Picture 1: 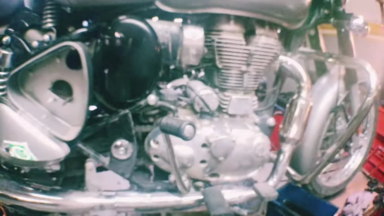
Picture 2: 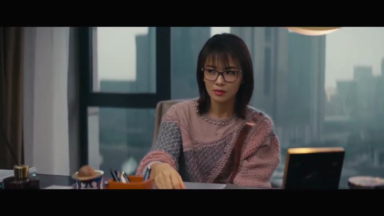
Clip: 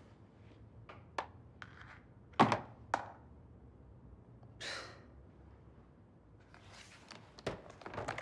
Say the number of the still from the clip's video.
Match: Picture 2